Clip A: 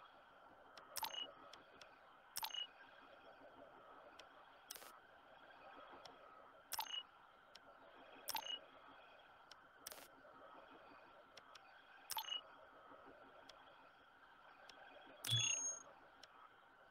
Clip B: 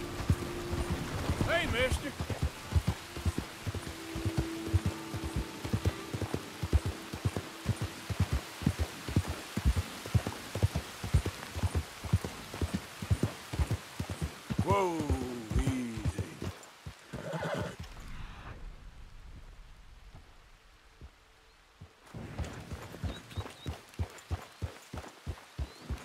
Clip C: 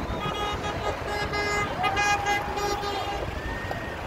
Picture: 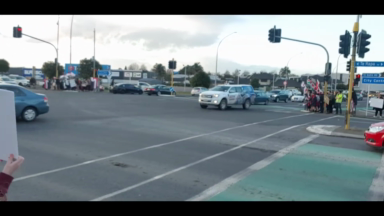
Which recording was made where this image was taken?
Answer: C